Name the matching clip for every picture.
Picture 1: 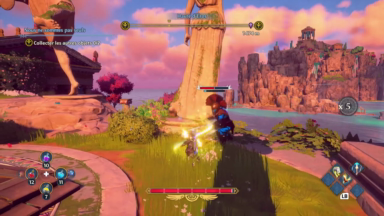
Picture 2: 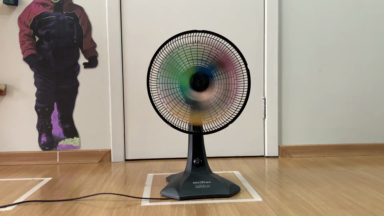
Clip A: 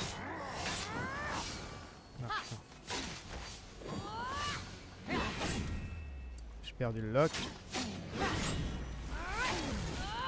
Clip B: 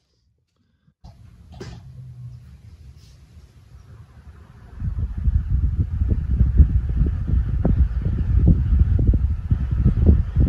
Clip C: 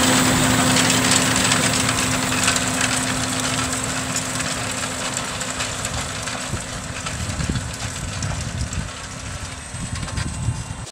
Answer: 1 A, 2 B